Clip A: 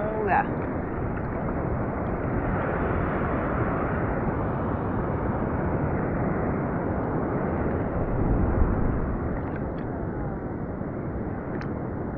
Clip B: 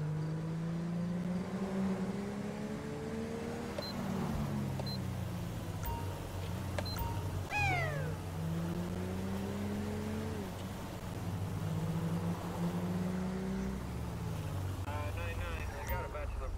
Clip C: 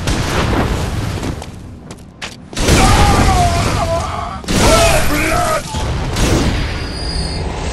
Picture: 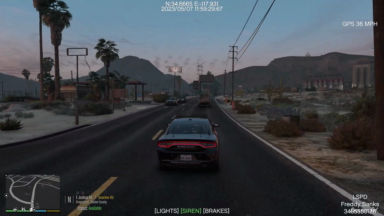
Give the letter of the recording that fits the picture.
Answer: B